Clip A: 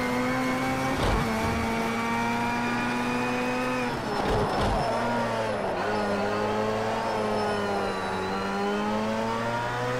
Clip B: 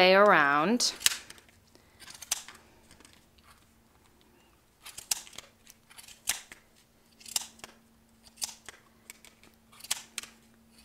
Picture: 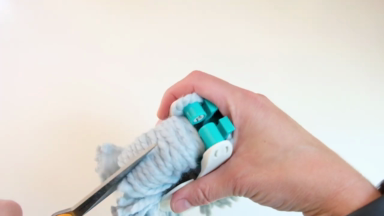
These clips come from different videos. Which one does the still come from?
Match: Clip B